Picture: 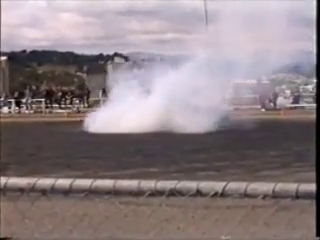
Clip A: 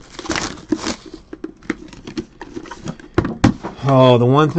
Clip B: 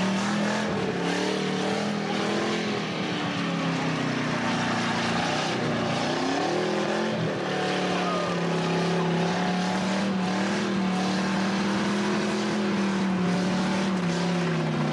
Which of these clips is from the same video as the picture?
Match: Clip B